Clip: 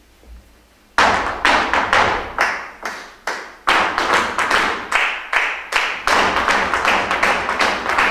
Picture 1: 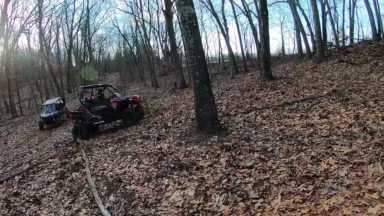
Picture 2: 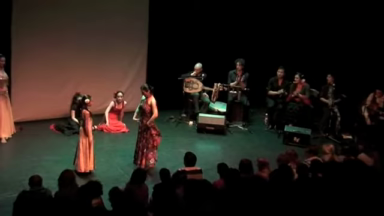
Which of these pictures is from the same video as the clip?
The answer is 2